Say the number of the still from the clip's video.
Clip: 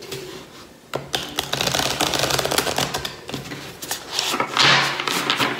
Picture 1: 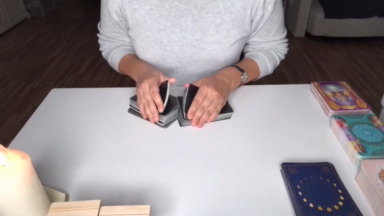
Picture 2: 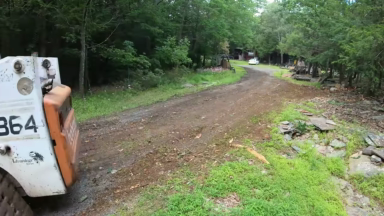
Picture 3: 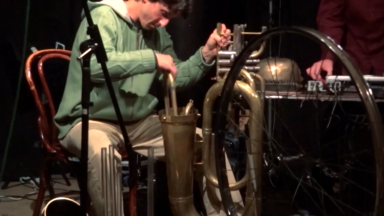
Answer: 1